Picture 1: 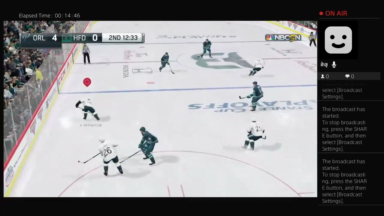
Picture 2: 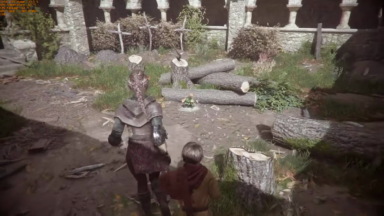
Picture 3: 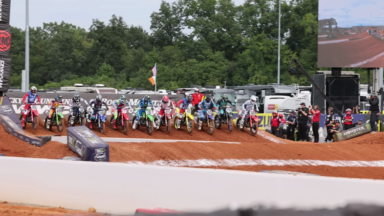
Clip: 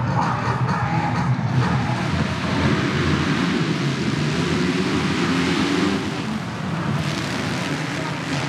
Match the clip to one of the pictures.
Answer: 3